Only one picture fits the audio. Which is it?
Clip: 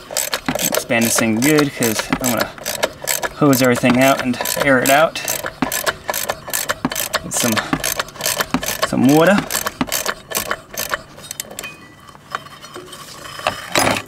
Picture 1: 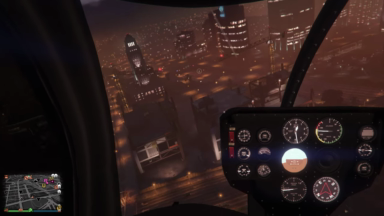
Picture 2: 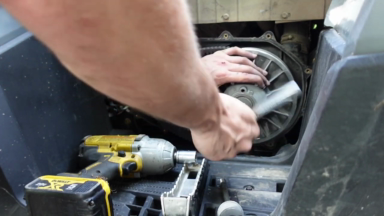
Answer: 2